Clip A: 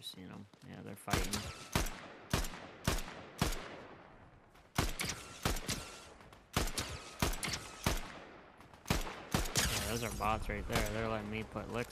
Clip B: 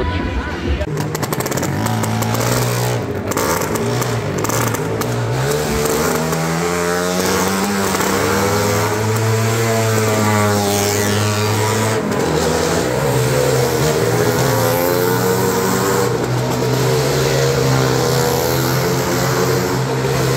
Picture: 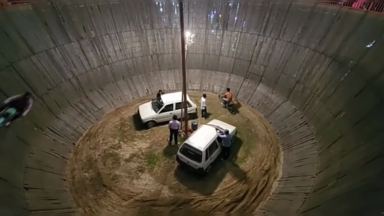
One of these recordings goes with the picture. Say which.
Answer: B